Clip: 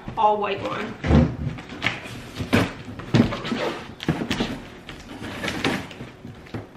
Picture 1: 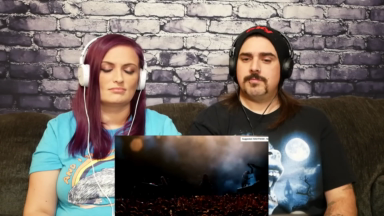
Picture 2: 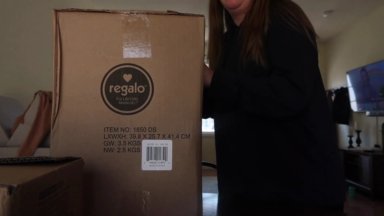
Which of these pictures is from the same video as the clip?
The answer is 2